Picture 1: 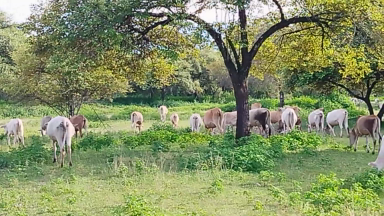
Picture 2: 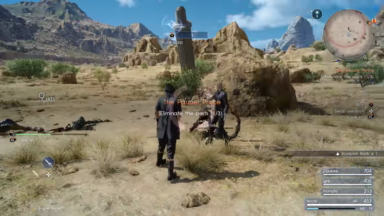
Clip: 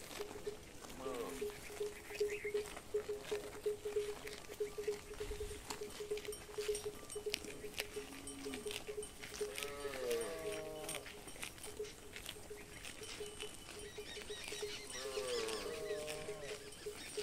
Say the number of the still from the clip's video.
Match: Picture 1